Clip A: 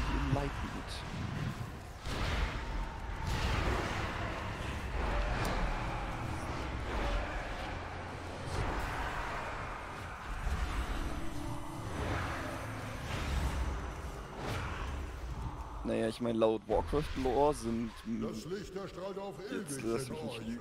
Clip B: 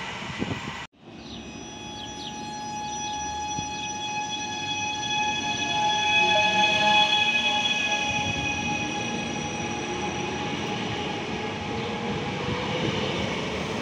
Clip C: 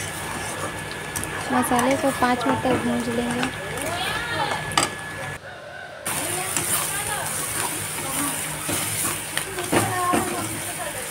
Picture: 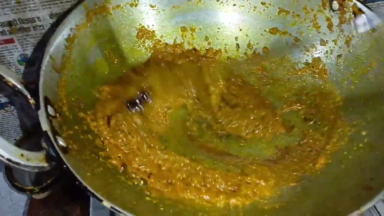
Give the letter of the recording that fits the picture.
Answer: C